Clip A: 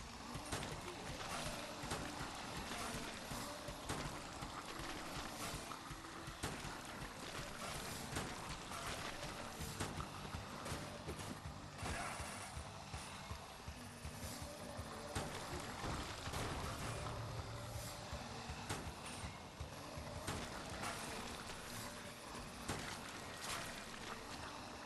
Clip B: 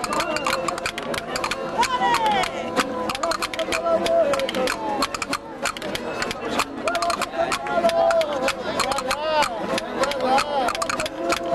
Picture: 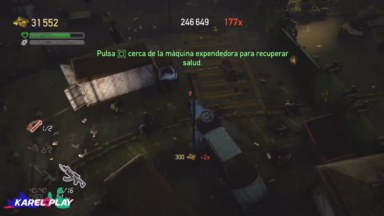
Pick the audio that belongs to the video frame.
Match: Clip A